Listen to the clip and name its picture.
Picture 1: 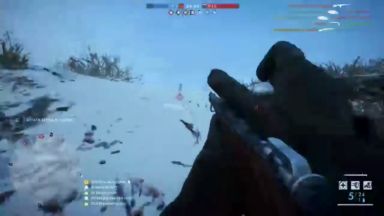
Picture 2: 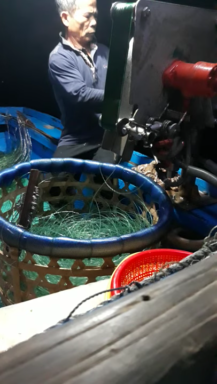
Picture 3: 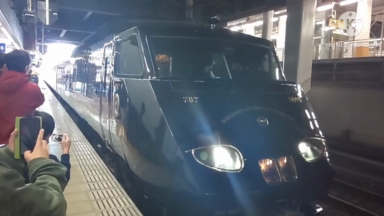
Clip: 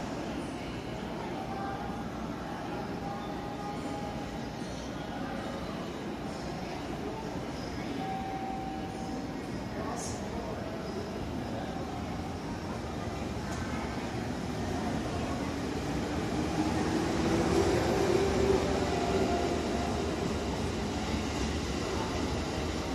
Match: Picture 3